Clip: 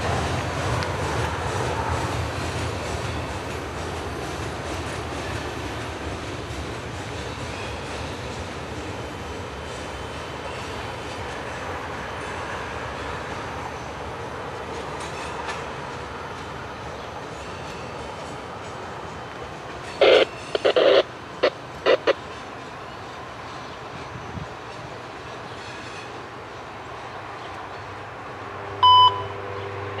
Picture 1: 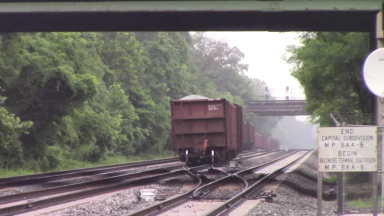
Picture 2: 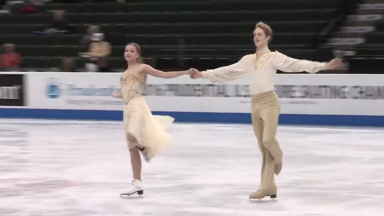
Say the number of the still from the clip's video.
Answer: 1